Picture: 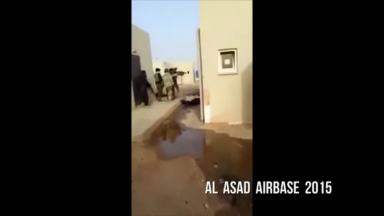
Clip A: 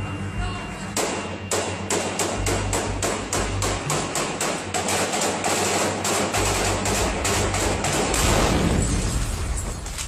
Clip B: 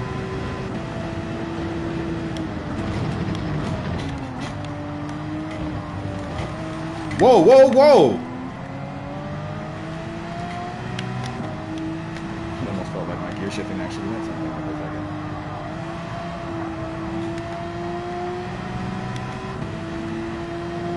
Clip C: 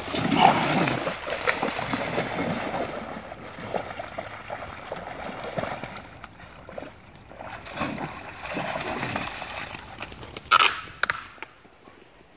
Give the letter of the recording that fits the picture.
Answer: A